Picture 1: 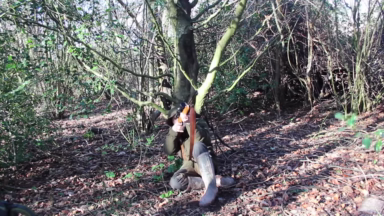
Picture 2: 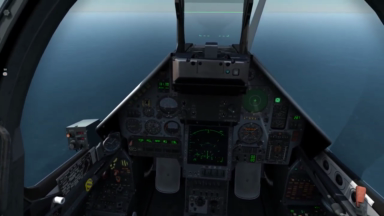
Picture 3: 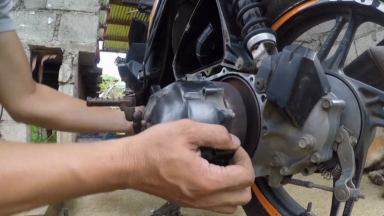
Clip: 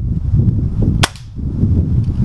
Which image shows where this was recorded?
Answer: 1